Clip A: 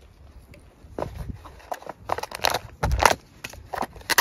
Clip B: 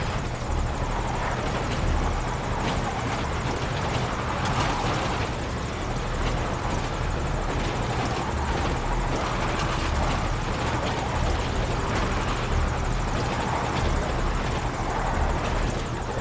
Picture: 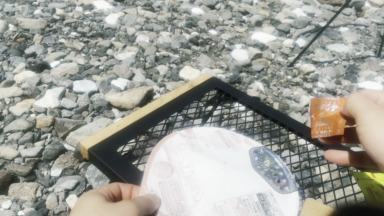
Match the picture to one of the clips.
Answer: A